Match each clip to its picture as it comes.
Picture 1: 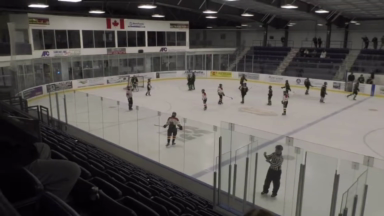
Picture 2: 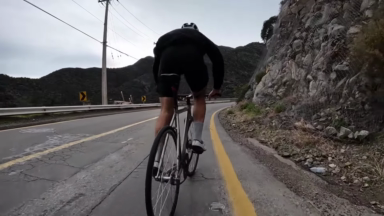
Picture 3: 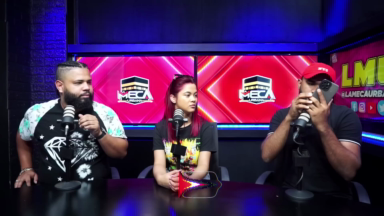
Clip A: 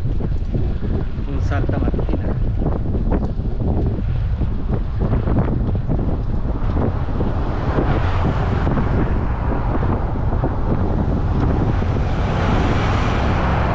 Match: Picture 2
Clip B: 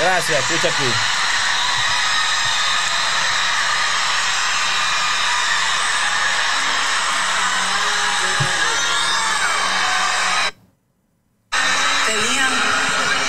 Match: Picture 3